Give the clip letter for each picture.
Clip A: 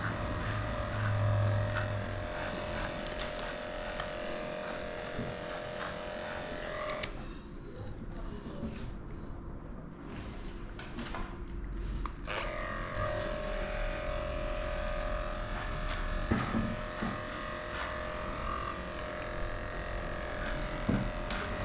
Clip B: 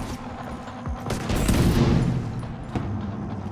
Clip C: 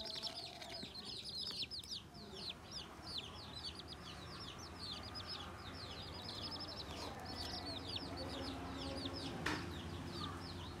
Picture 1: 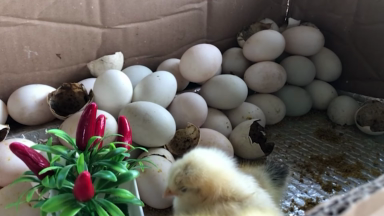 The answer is C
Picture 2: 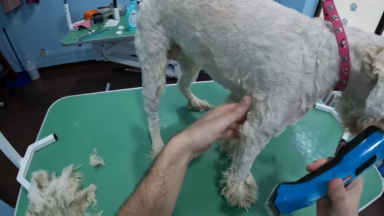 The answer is A